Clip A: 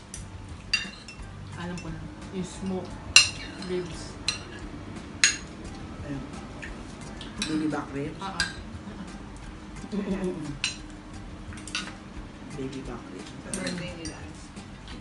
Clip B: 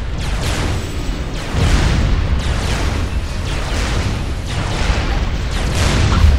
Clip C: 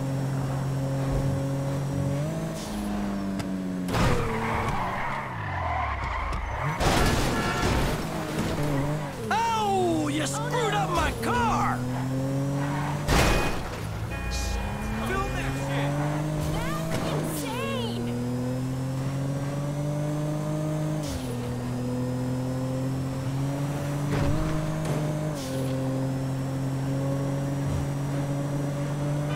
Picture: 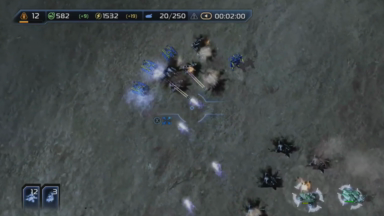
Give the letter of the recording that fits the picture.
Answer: B